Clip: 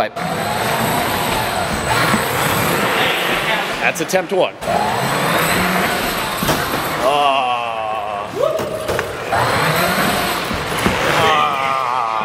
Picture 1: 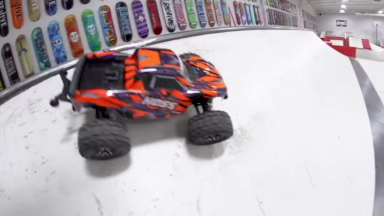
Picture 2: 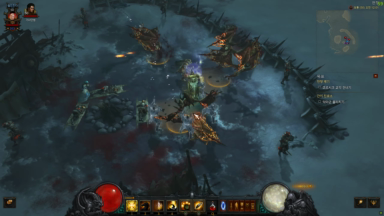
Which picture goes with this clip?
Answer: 1